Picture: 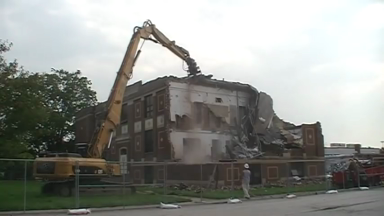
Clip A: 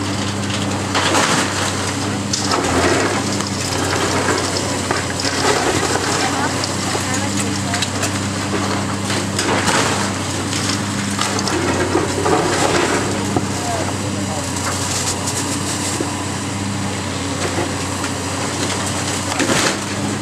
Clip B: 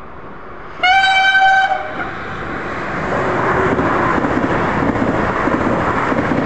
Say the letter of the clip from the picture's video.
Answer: A